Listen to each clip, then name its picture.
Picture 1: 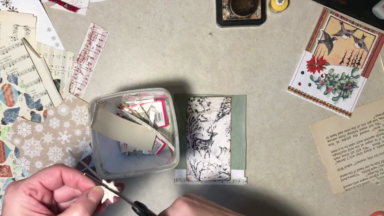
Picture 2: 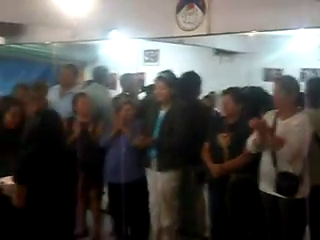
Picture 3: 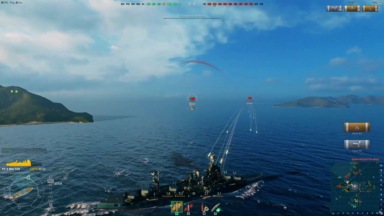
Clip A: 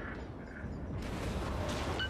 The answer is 3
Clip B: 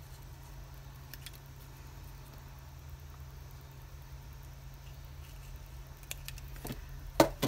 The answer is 1